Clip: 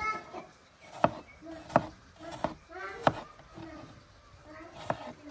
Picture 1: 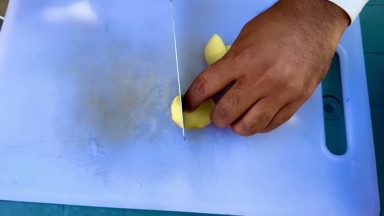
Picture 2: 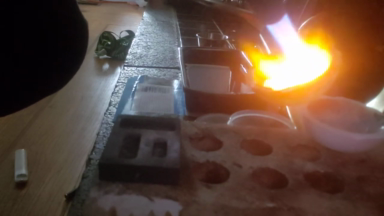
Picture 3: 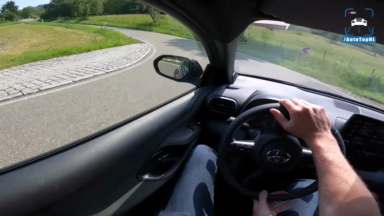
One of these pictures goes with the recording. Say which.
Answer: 1